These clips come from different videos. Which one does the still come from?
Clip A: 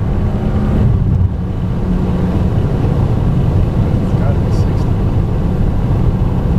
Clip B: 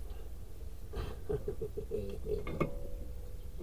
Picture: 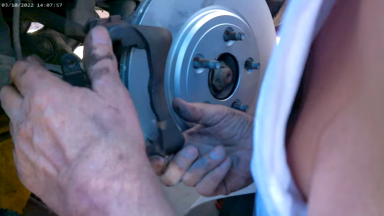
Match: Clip B